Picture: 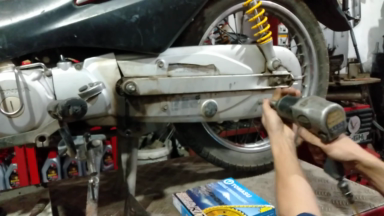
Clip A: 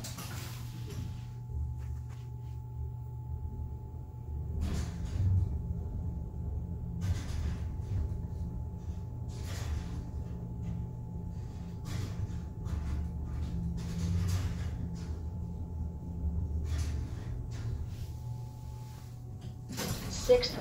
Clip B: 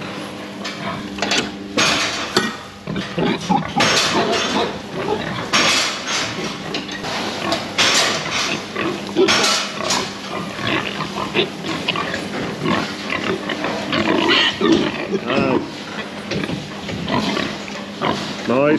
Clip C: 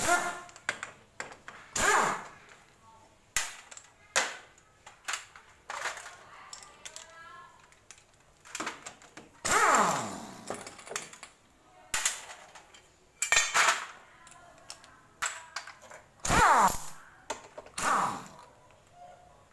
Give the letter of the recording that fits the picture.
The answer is C